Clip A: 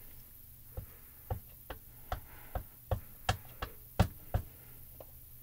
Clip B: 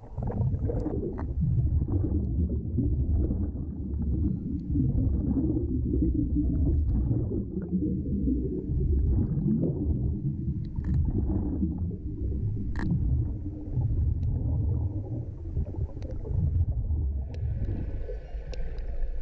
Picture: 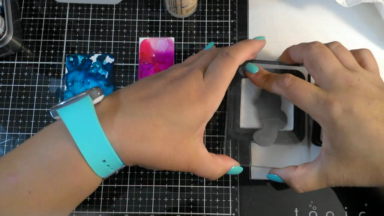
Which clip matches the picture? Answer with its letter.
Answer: A